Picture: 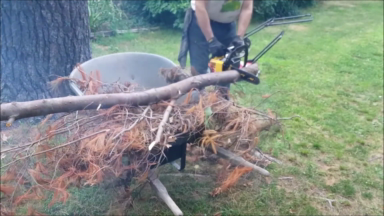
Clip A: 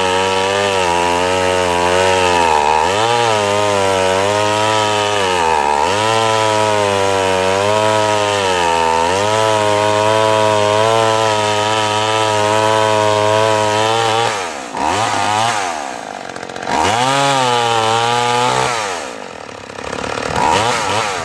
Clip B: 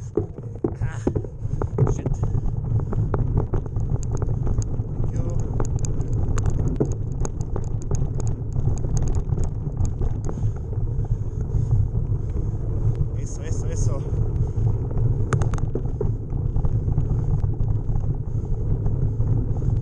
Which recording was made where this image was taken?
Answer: A